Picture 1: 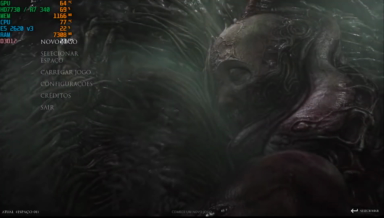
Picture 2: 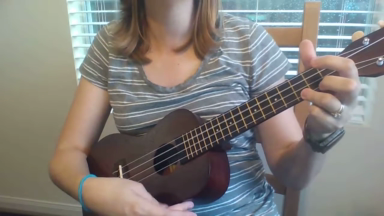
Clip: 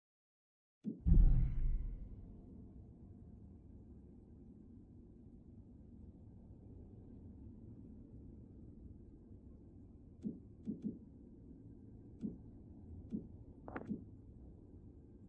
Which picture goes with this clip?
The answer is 1